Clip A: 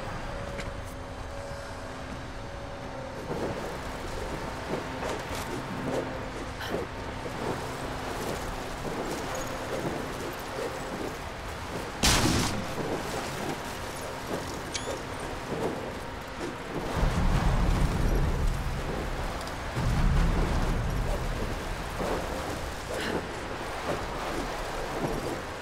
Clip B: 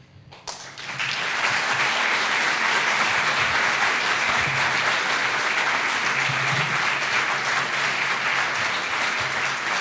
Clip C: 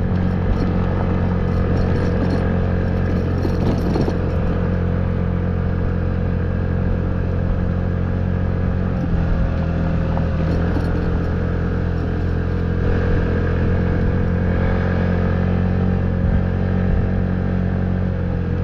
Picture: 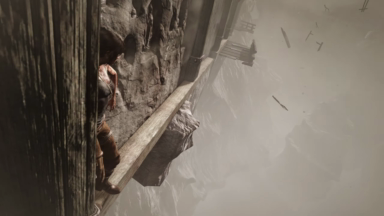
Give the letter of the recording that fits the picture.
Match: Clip A